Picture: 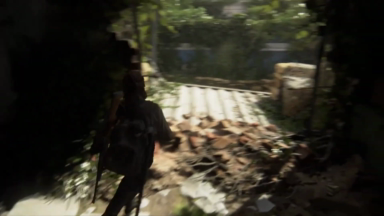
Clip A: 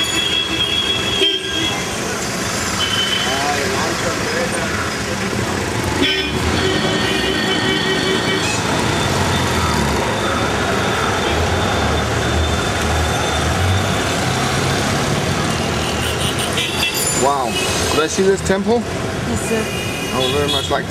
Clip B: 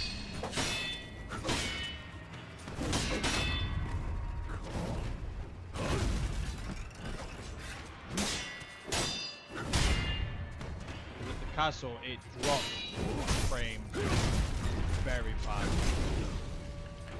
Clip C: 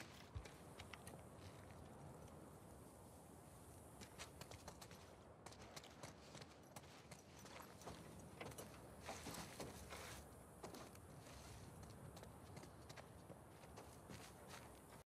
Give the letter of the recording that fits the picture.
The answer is C